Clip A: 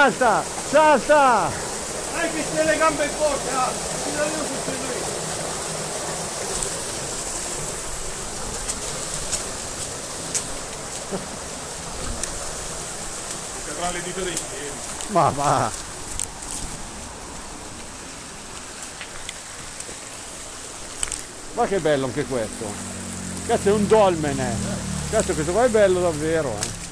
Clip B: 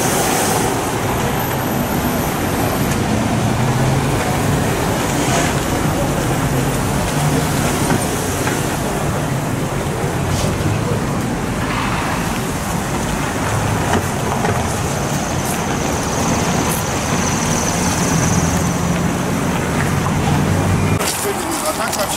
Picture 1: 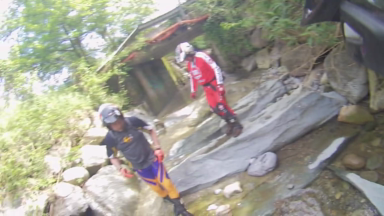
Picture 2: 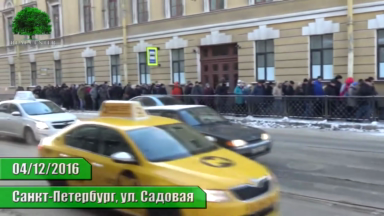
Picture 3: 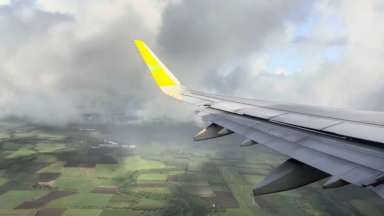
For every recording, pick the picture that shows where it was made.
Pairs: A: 1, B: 2